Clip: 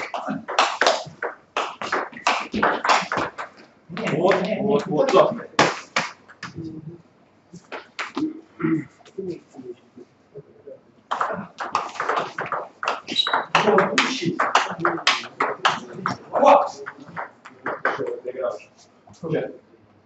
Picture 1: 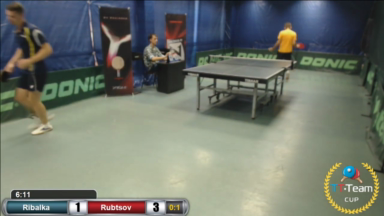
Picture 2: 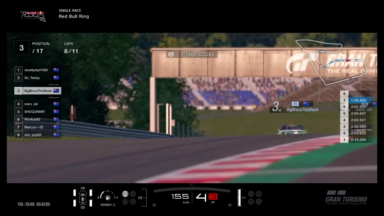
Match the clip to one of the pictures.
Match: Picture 1